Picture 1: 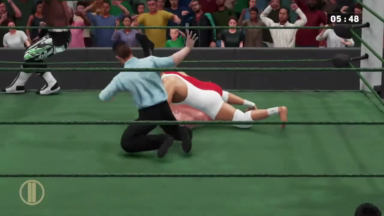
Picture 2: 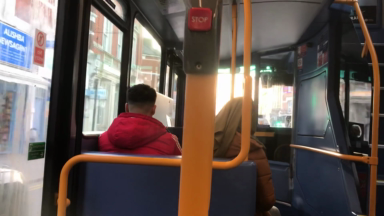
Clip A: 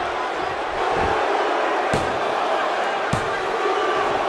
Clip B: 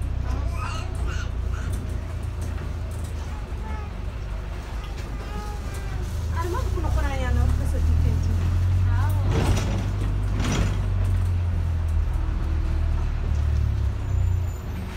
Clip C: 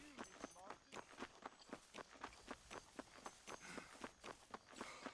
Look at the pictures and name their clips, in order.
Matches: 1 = A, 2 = B